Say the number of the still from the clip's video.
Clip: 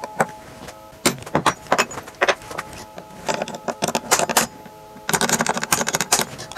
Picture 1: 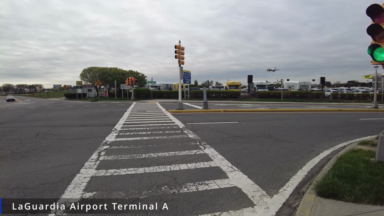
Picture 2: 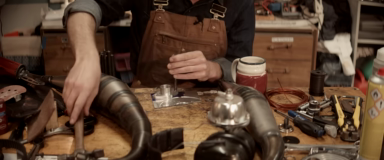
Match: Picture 2